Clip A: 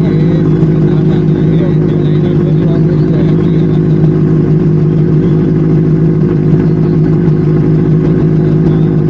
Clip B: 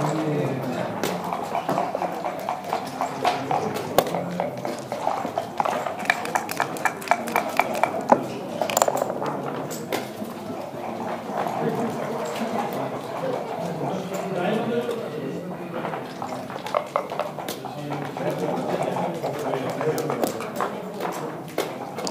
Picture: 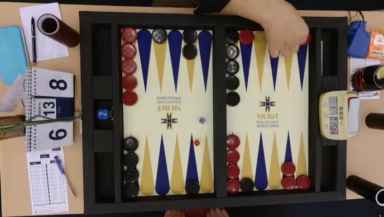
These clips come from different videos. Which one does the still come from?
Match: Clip B